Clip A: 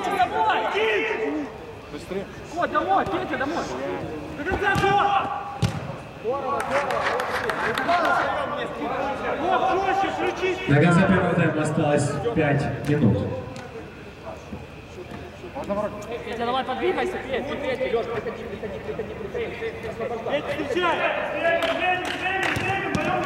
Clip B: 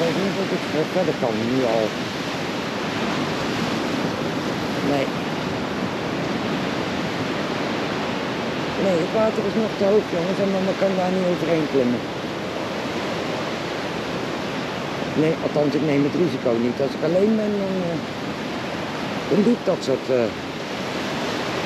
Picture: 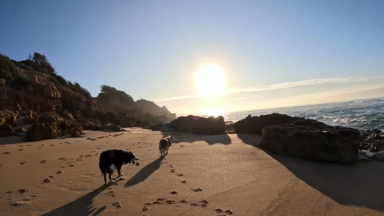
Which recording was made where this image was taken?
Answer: B